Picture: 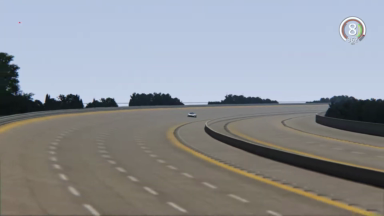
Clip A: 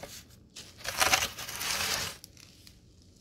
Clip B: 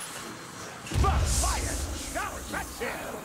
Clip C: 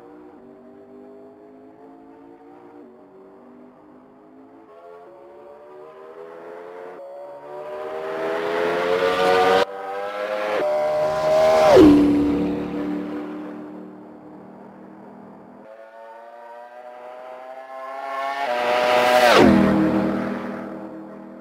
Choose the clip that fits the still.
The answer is C